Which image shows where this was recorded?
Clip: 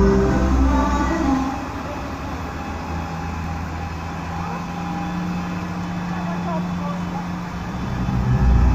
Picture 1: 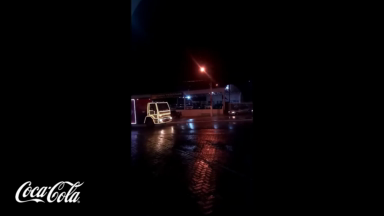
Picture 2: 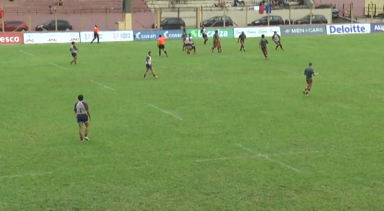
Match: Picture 1